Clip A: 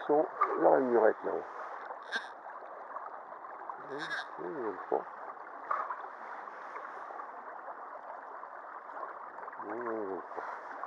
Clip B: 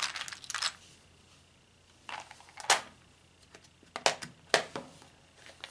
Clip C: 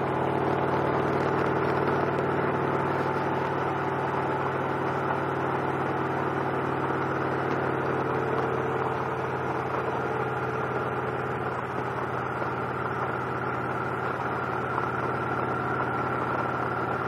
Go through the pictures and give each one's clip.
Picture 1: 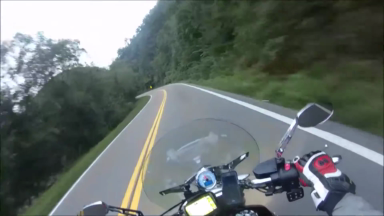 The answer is C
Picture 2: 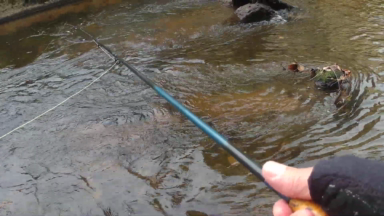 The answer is A